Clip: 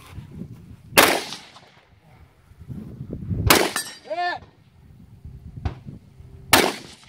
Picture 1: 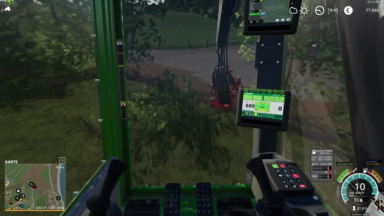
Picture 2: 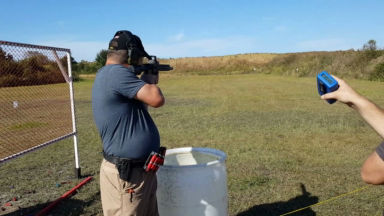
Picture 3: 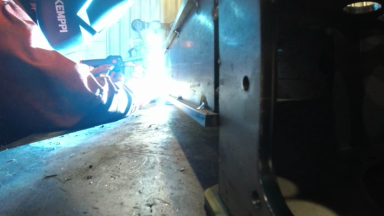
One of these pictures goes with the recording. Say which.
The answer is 2